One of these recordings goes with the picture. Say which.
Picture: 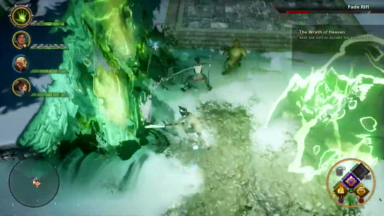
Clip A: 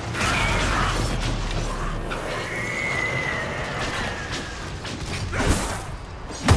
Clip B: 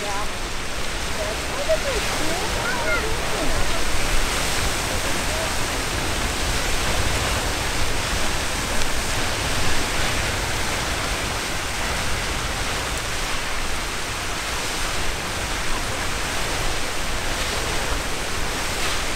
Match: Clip A